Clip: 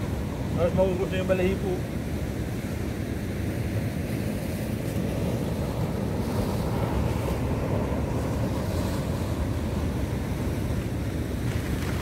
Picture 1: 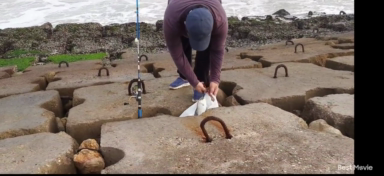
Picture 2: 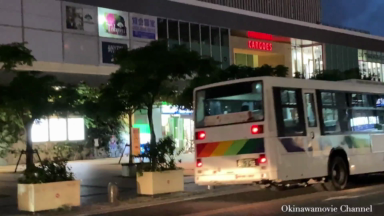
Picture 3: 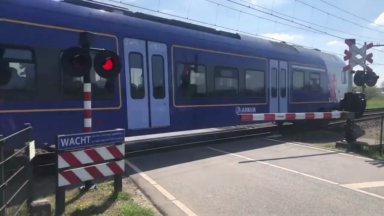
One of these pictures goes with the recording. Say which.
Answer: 1